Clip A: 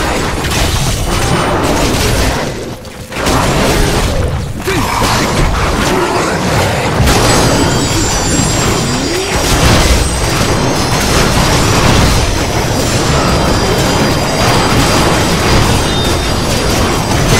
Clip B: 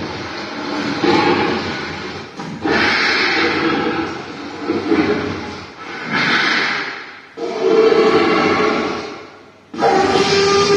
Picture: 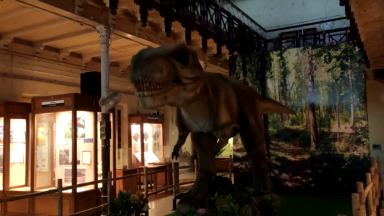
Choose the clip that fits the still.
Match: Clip B